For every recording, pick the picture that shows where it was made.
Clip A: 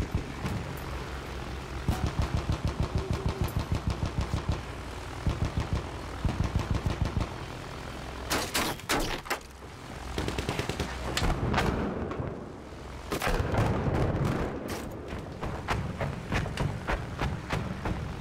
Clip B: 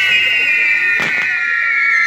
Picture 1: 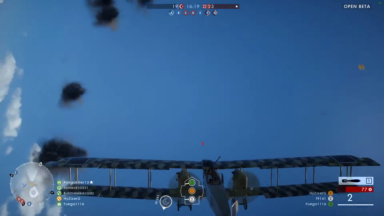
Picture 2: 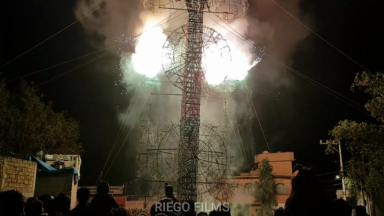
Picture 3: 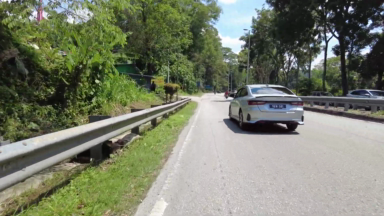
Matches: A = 1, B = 2